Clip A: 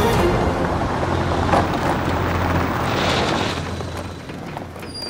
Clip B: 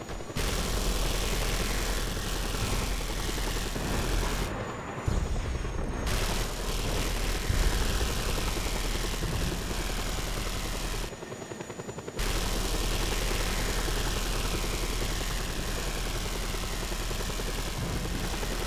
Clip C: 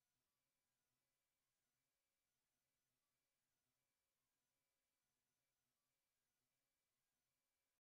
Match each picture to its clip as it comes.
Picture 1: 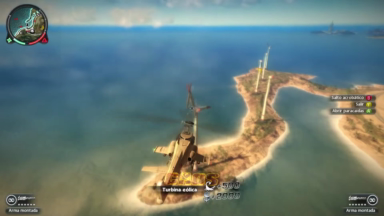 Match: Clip B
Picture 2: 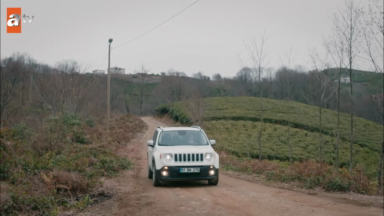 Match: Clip A